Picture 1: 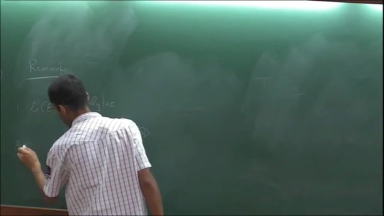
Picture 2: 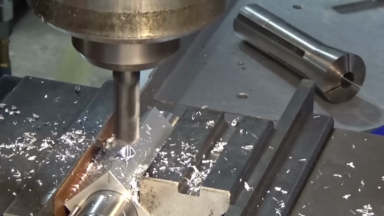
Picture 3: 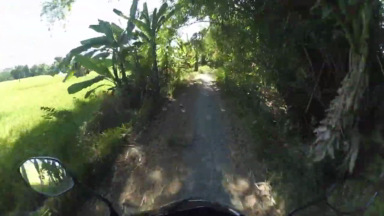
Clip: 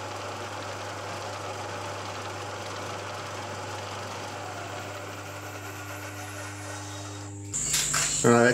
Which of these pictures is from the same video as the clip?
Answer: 2